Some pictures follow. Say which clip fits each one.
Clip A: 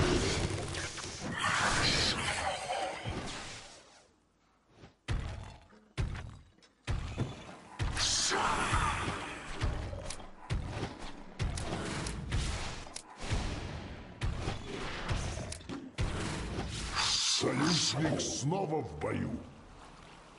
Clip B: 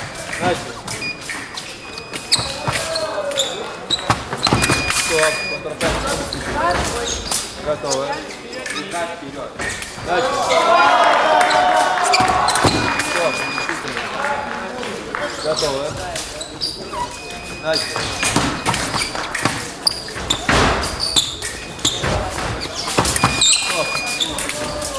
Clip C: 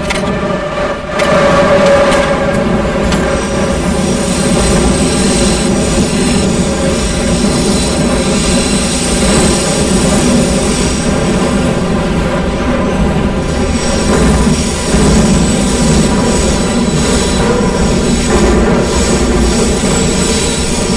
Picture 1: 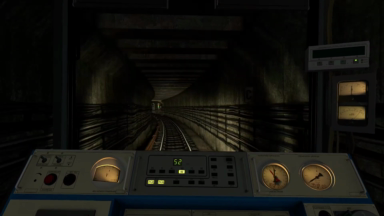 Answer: C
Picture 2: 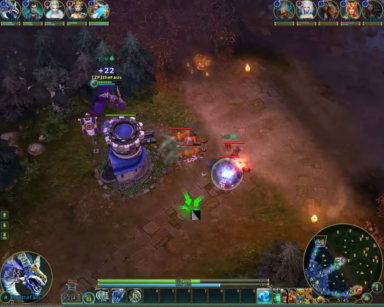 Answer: A